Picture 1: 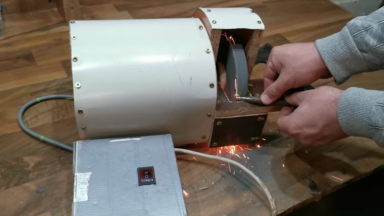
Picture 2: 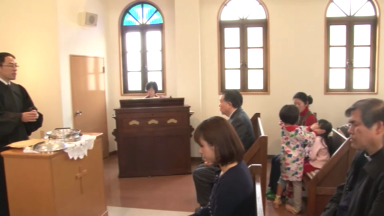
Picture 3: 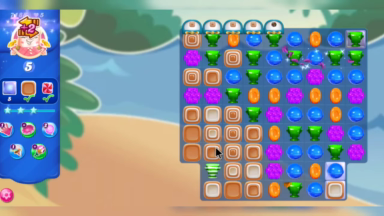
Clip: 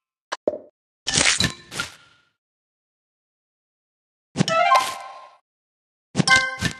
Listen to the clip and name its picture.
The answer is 3